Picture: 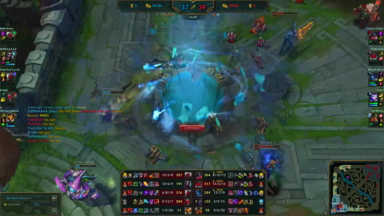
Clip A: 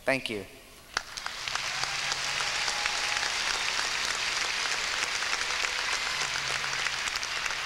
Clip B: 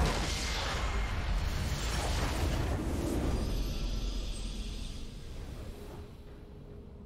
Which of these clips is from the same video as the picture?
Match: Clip B